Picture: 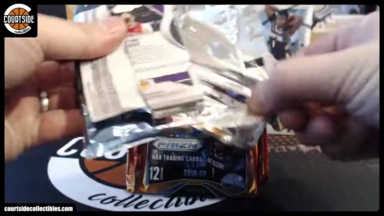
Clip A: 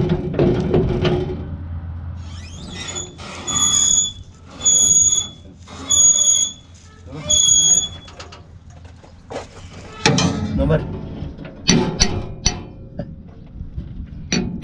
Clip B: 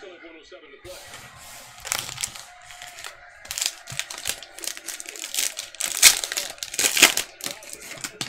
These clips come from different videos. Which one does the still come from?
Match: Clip B